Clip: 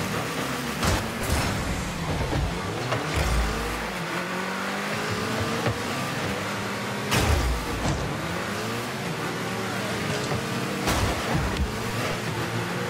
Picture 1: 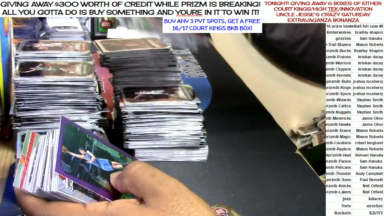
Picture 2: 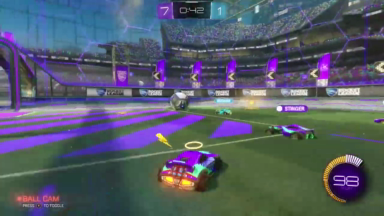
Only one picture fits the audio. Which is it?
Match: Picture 2